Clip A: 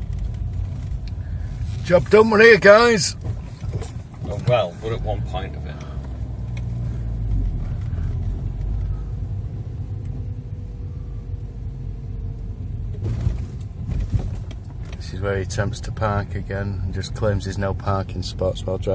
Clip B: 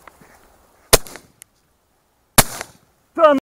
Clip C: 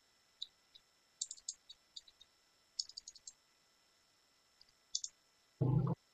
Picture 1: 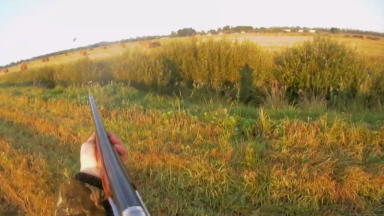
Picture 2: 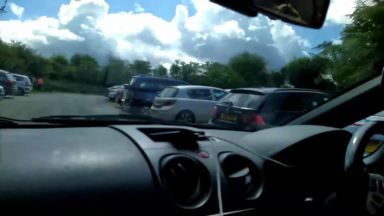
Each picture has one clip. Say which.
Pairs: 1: B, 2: A